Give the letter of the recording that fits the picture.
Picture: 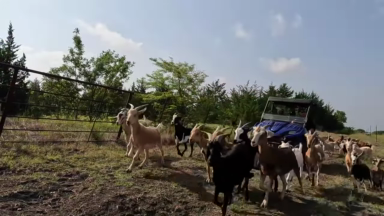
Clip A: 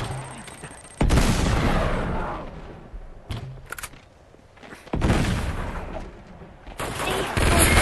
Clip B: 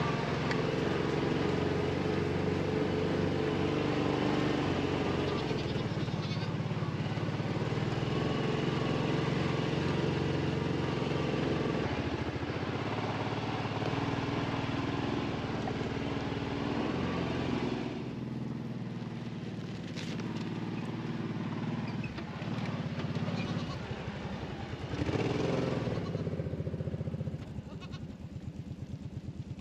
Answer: B